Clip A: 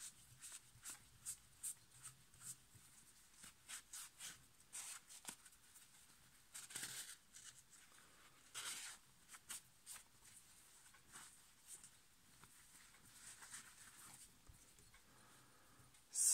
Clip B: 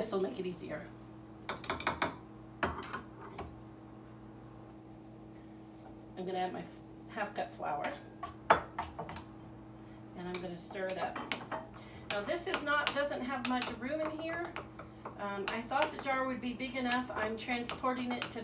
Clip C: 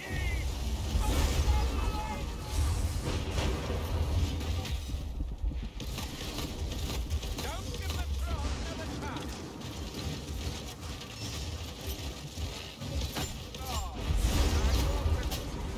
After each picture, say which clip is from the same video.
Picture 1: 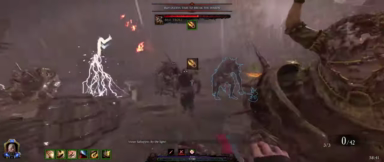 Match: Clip C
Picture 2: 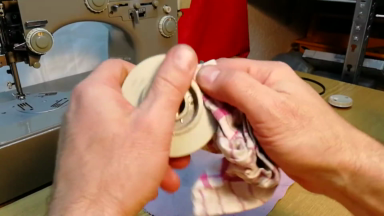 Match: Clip A